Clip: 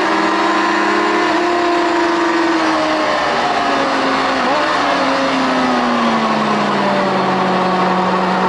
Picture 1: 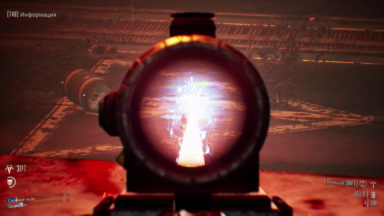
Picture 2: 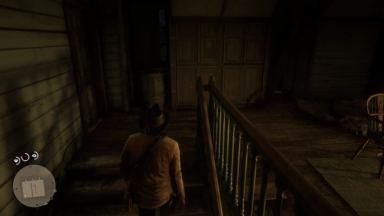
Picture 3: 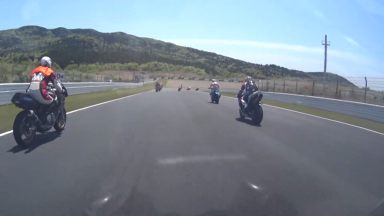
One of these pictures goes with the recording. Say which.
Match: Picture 3